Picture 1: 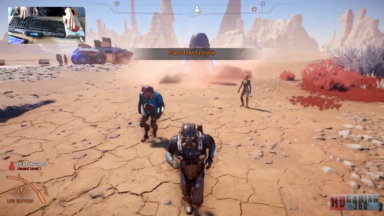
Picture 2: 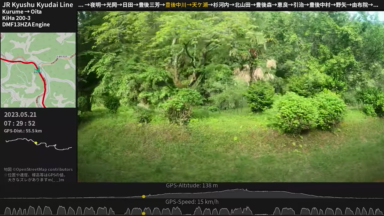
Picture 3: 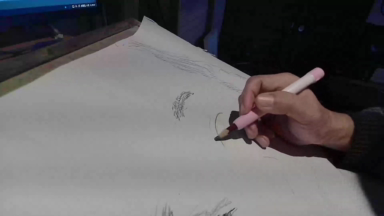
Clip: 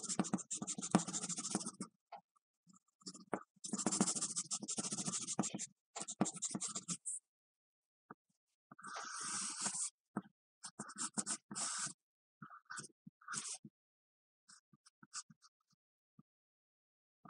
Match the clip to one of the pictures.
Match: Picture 3